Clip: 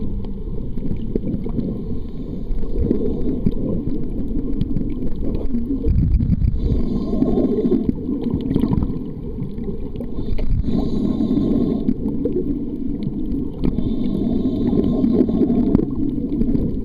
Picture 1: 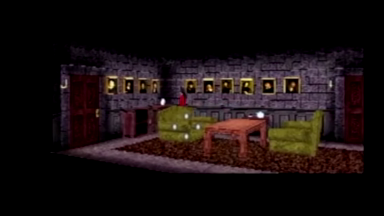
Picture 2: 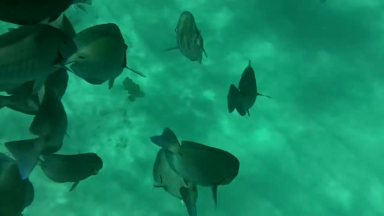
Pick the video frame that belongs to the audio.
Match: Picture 2